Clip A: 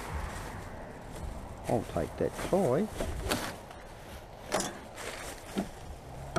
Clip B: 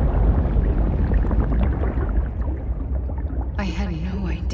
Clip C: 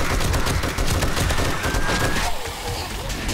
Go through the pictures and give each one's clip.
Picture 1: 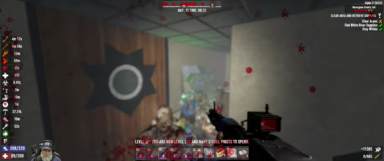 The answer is C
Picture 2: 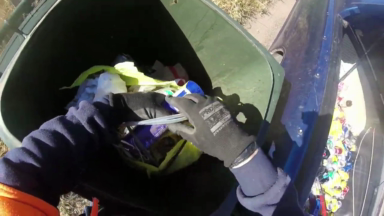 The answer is A